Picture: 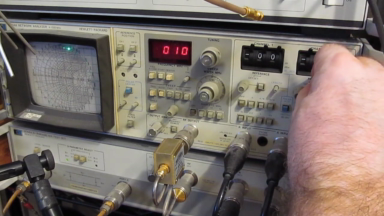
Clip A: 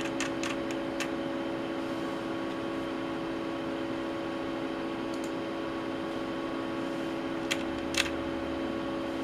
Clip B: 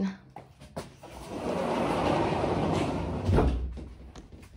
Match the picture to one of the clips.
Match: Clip A